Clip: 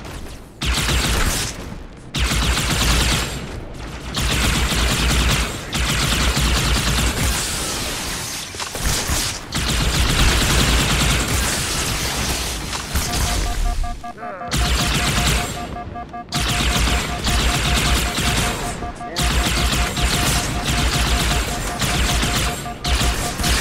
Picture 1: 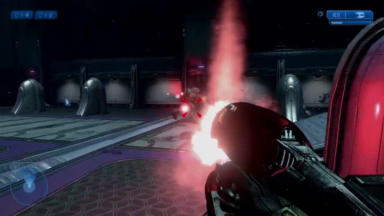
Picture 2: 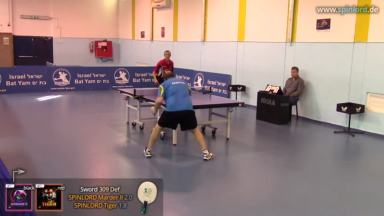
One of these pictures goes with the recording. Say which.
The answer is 1